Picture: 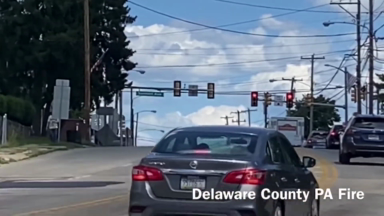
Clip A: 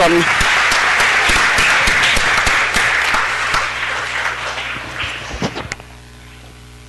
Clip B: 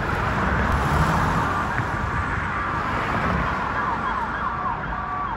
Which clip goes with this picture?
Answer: B